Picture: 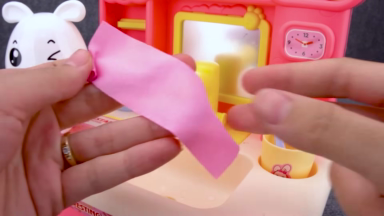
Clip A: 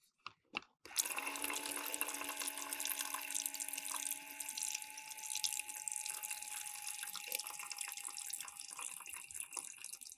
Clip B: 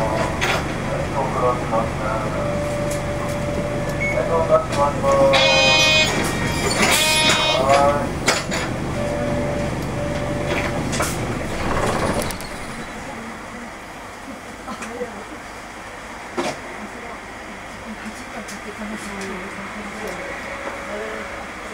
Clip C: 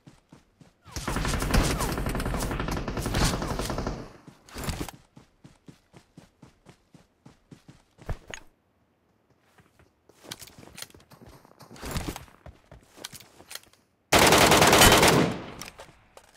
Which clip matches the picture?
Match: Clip A